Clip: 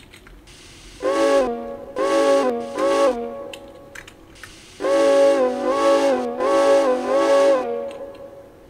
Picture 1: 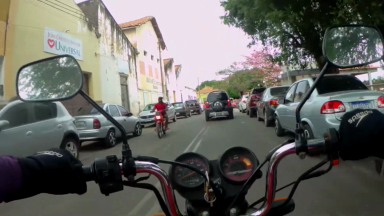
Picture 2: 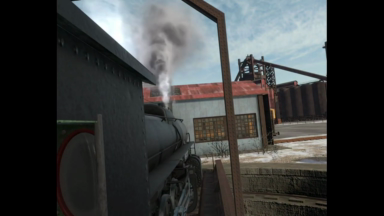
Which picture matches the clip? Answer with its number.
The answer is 2